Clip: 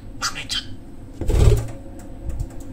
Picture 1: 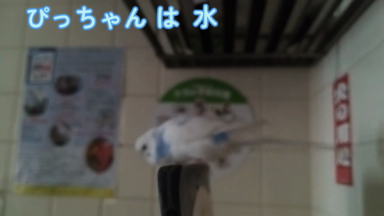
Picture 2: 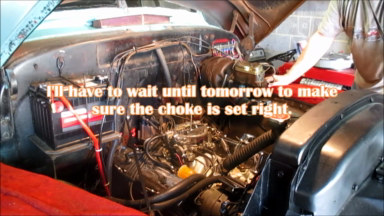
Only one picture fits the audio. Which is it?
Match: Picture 1